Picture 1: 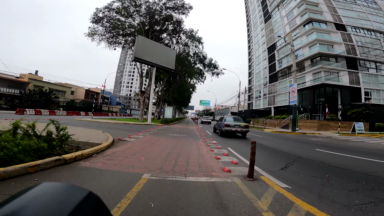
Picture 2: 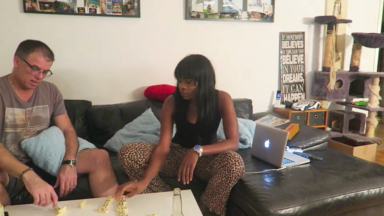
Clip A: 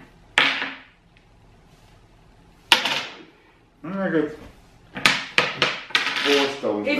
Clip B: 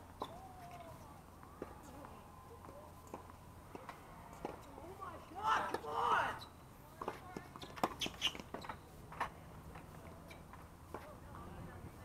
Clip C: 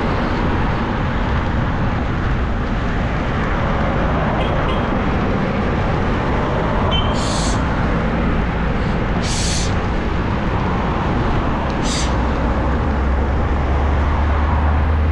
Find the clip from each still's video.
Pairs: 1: C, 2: A